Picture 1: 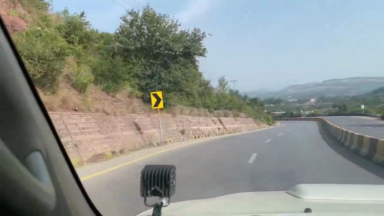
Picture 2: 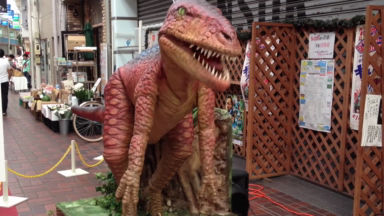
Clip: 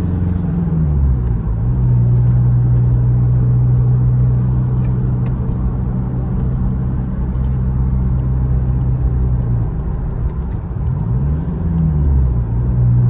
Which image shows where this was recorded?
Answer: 1